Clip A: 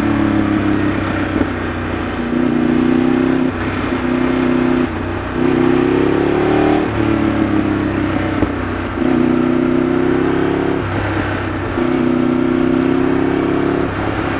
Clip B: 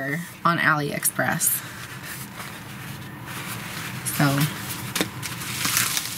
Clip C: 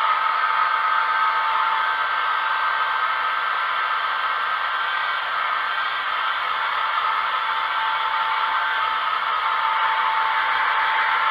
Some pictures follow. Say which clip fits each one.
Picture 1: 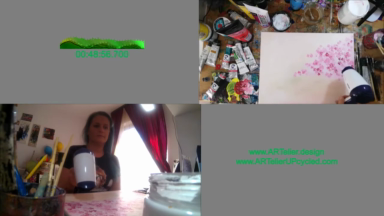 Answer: C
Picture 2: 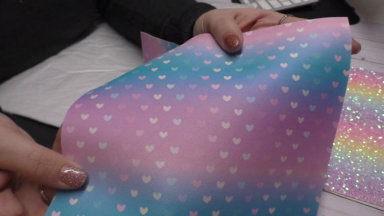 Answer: B